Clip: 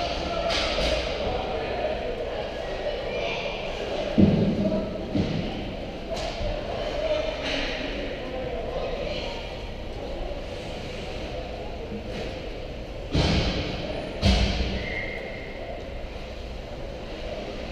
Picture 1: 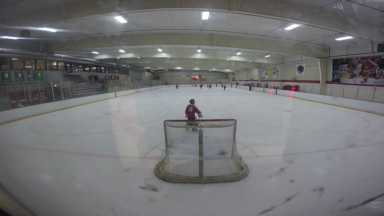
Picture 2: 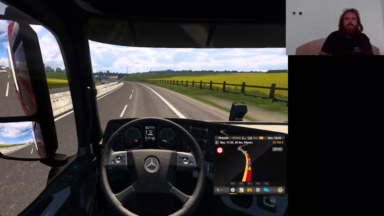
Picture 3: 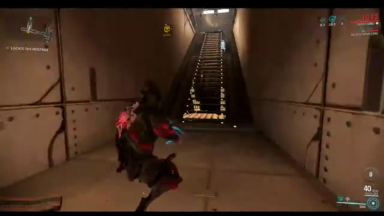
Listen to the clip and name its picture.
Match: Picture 1